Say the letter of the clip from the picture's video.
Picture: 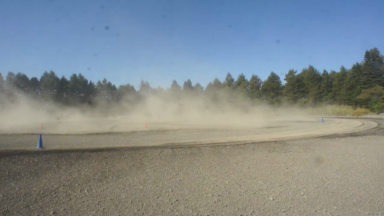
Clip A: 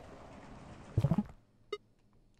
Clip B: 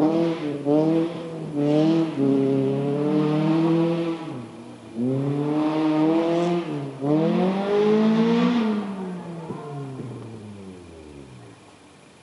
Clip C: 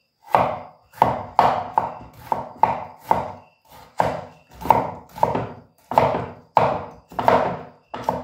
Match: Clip B